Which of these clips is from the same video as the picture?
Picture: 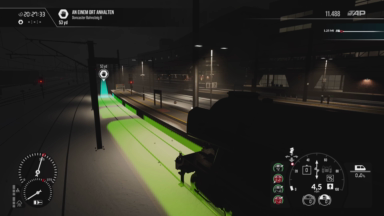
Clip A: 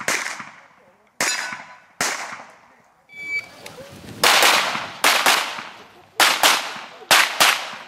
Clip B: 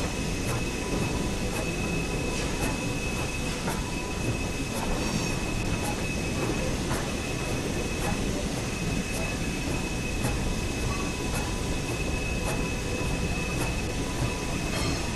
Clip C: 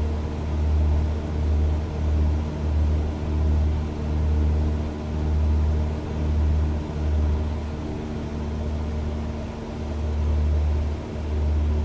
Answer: B